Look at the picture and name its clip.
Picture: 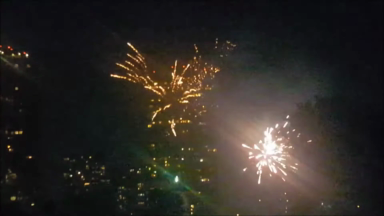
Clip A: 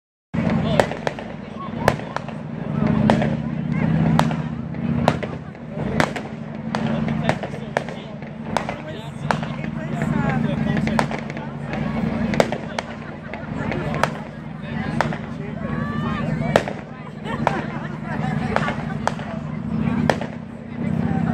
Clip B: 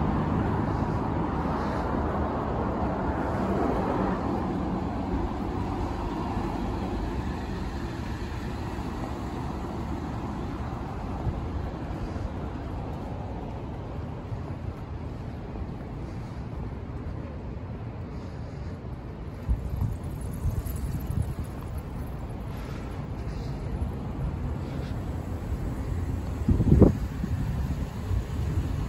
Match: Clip A